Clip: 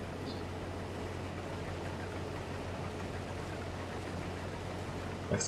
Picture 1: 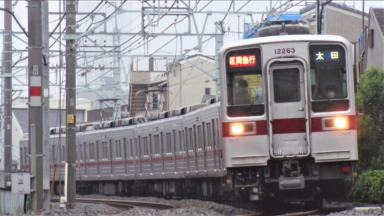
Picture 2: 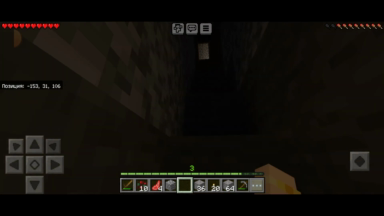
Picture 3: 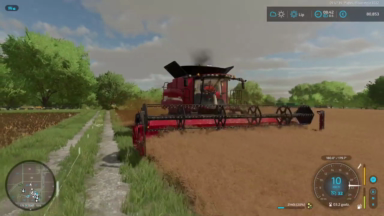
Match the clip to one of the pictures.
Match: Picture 3